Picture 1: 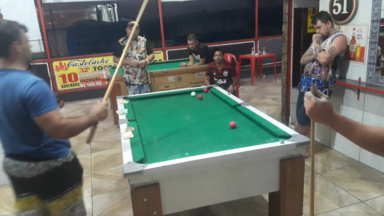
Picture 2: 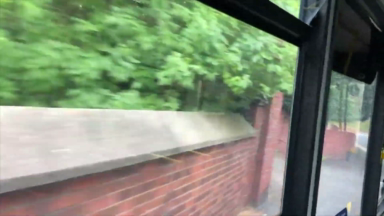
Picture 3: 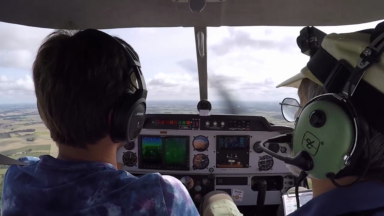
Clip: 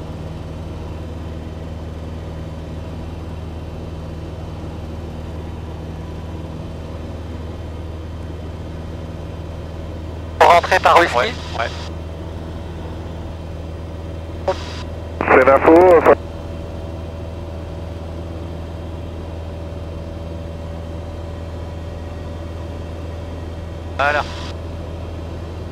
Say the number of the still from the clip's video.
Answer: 3